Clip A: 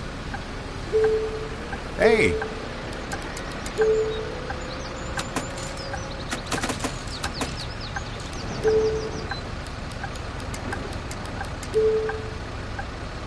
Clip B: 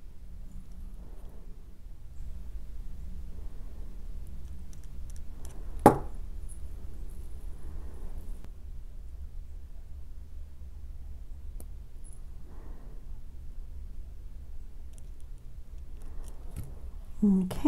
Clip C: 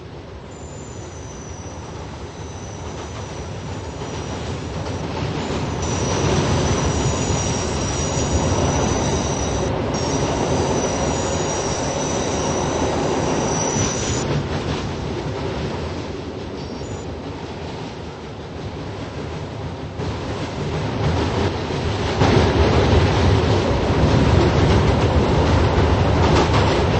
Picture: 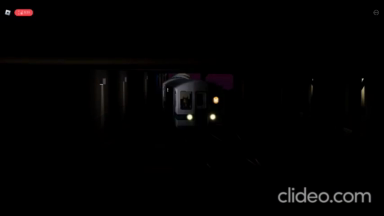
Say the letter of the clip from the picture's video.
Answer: C